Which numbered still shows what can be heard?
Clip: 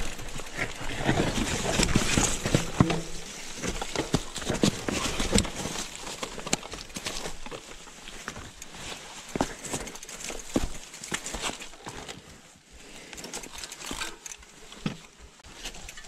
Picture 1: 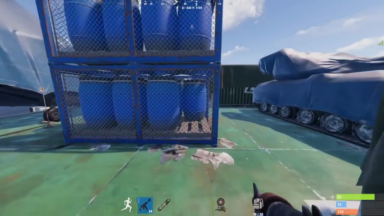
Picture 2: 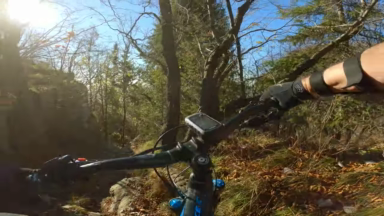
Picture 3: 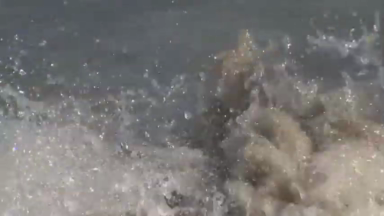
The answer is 2